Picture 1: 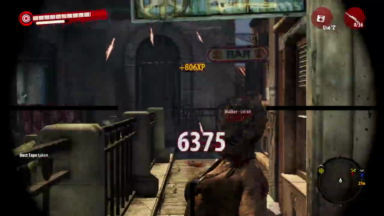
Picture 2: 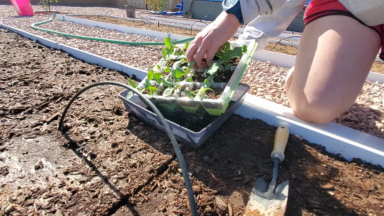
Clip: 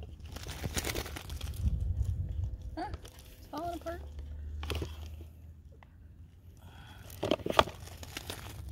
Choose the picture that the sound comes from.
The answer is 2